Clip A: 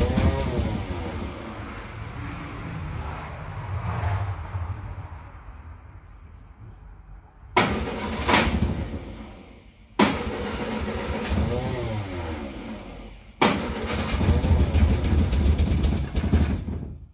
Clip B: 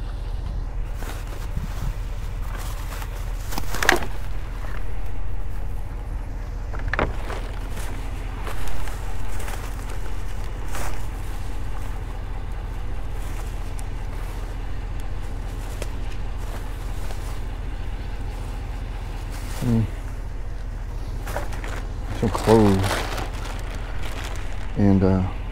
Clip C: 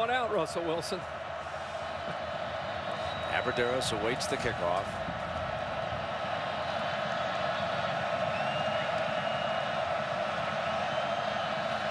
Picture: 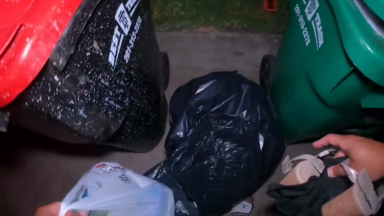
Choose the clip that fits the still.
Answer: B